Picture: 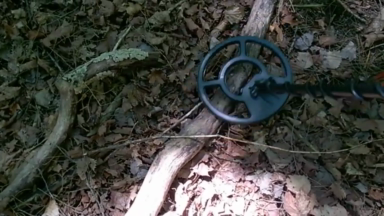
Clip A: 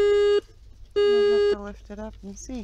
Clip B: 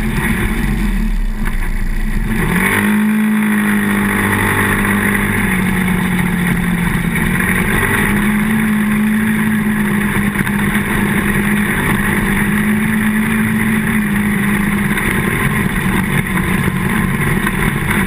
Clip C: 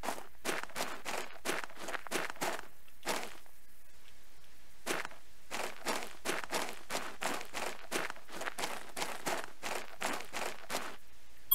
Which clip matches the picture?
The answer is A